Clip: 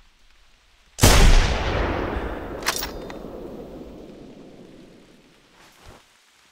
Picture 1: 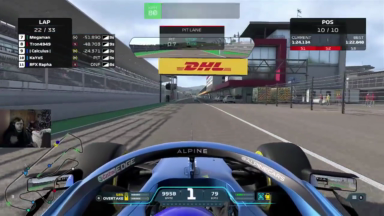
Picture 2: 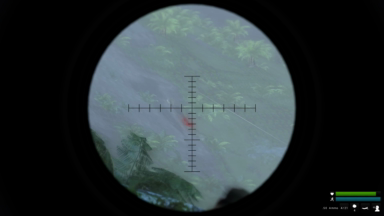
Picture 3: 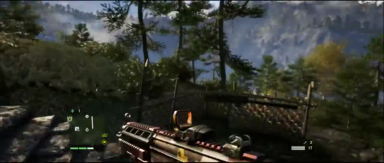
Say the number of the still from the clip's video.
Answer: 2